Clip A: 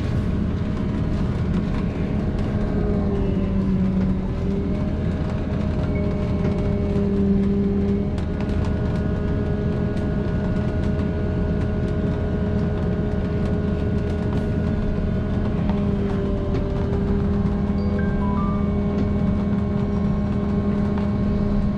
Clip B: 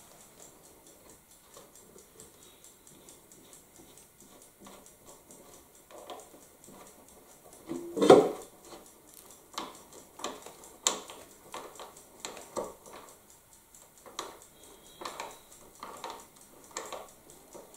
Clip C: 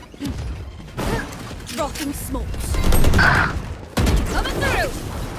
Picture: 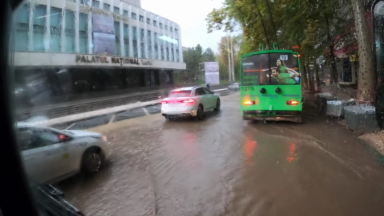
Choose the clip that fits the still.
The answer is A